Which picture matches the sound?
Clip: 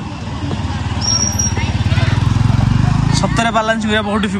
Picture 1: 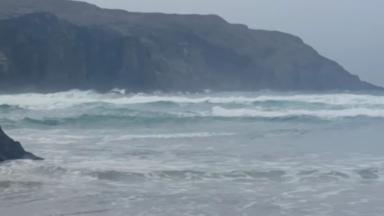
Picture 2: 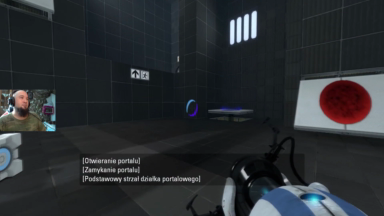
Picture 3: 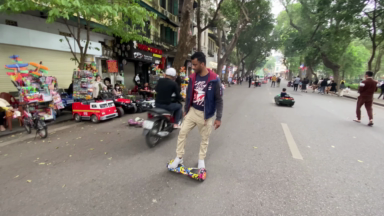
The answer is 3